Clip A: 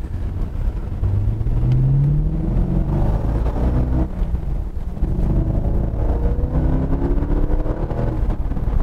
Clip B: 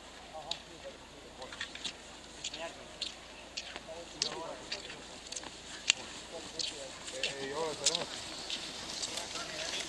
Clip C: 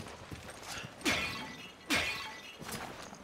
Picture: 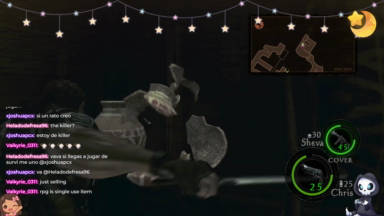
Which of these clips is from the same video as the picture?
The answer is C